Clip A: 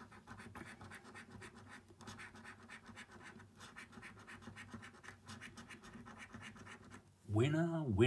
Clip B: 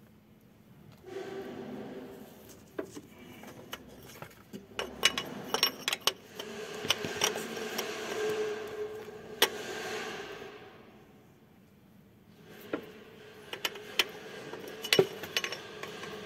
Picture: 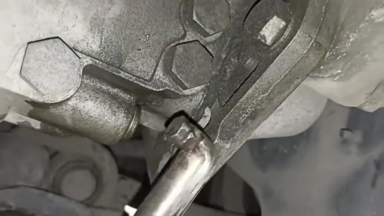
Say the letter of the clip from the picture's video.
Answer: B